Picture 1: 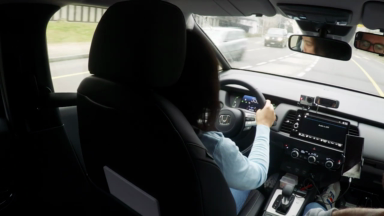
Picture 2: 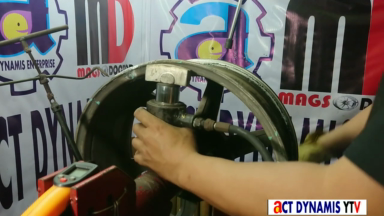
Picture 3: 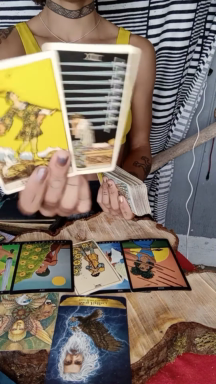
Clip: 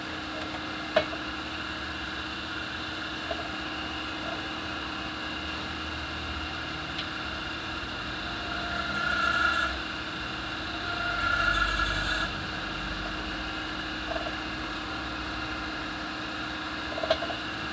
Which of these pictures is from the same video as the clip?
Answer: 2